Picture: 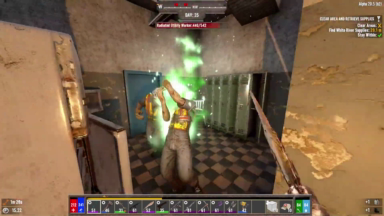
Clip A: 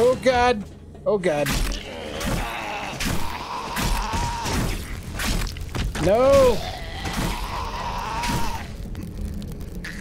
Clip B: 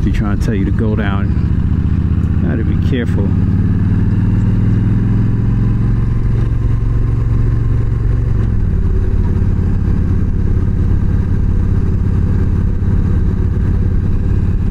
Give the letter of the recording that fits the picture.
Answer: A